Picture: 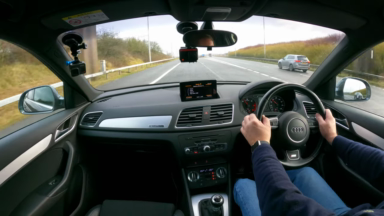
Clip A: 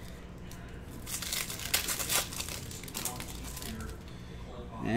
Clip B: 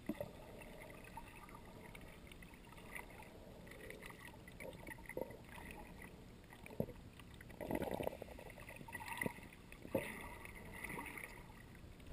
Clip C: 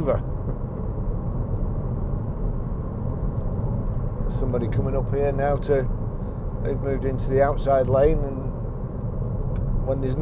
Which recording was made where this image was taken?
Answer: C